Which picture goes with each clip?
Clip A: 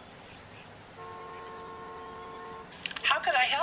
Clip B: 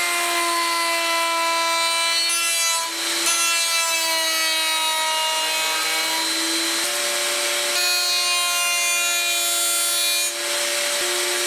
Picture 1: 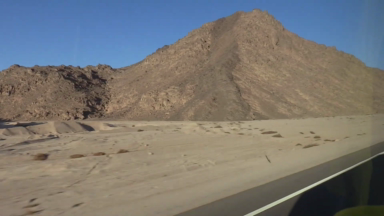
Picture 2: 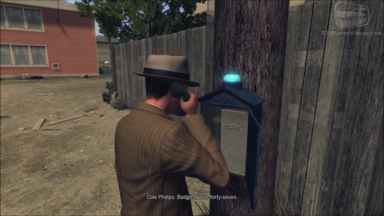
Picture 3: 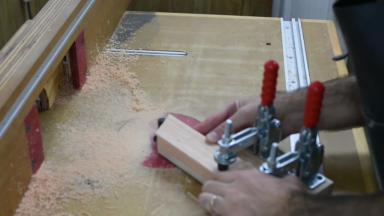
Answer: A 2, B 3